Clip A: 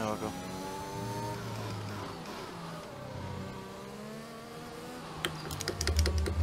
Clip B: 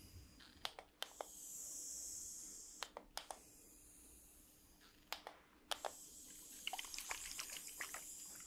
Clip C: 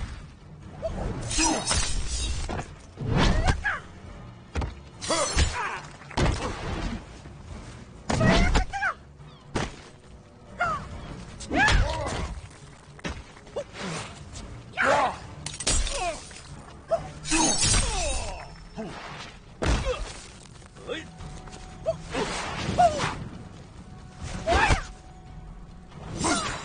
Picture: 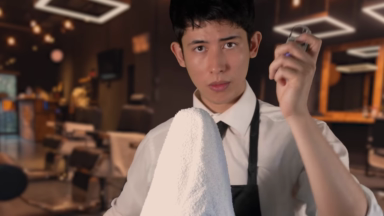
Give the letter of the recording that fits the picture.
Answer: B